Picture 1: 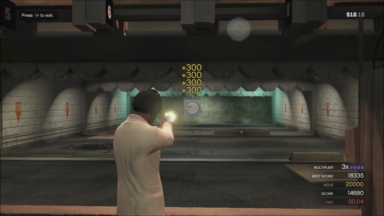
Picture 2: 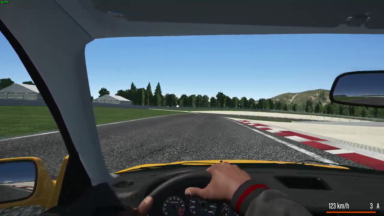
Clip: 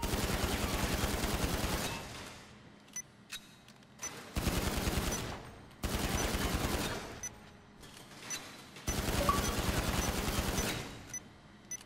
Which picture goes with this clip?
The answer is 1